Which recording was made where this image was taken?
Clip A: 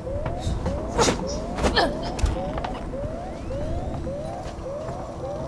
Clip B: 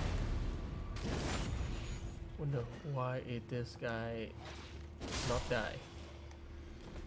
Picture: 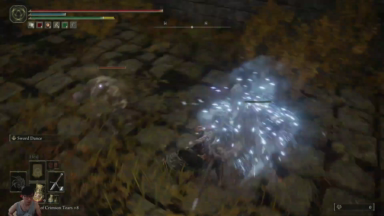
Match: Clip B